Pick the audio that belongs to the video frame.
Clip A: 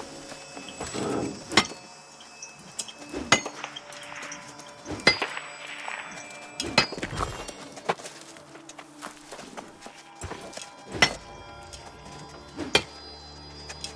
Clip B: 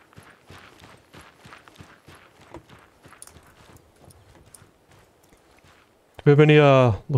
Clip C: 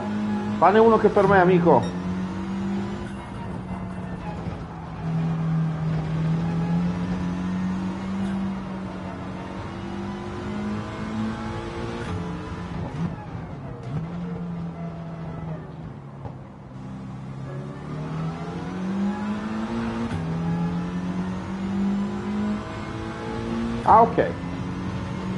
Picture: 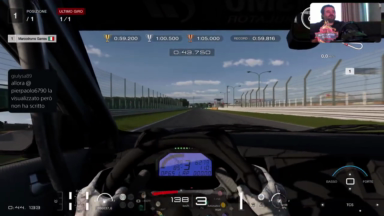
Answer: C